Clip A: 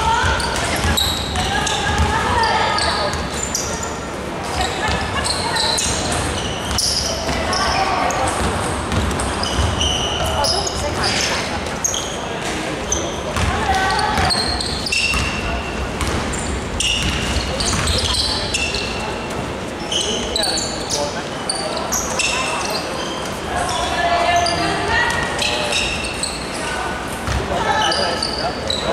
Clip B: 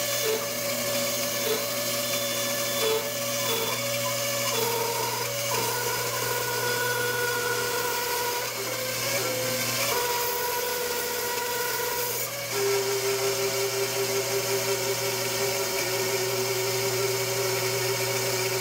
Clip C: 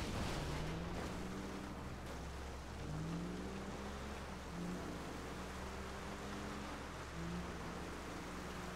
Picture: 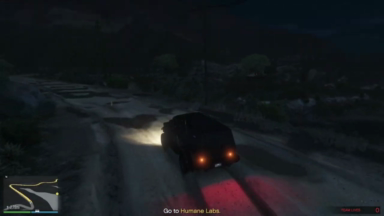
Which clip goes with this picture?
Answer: C